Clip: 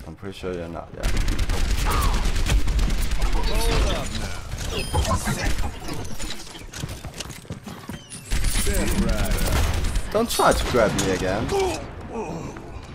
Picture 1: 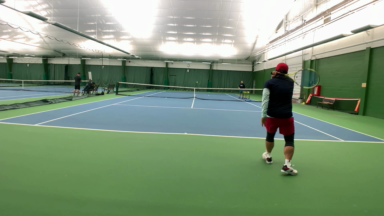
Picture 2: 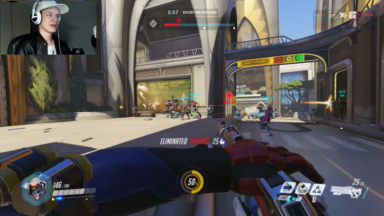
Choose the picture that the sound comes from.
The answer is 2